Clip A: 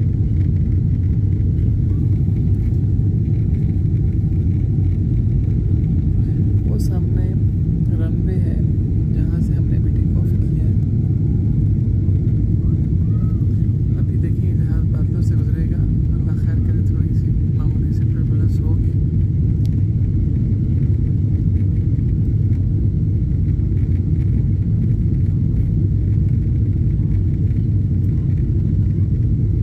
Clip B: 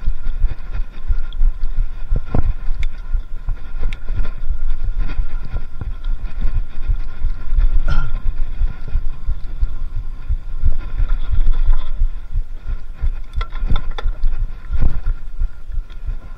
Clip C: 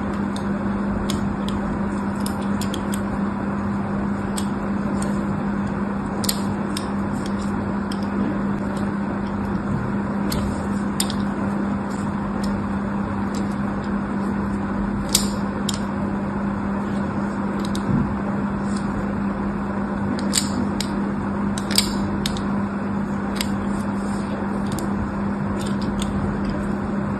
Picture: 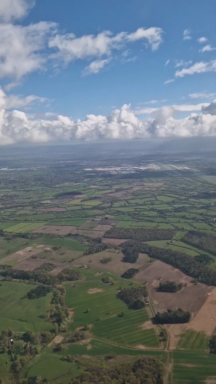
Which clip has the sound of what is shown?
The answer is A